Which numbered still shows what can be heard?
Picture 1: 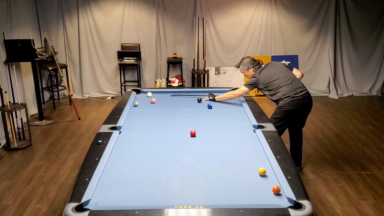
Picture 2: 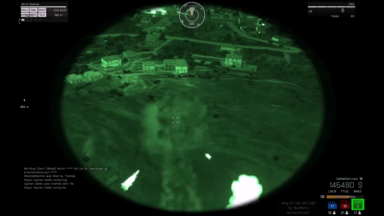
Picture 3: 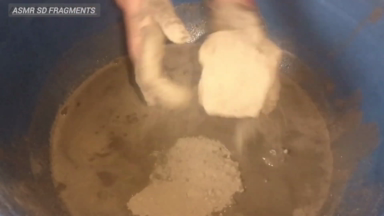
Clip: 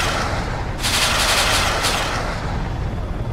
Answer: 2